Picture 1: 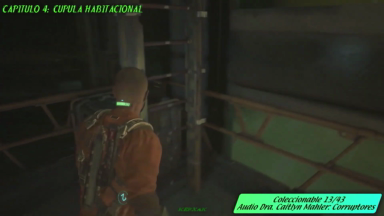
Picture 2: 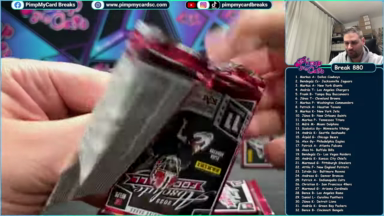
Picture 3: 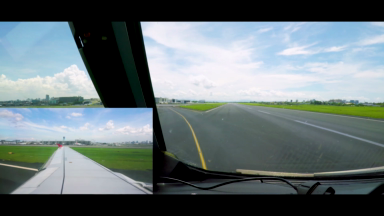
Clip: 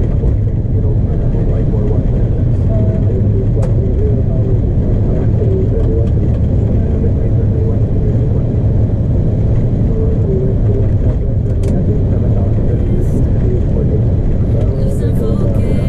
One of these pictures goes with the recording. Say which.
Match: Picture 3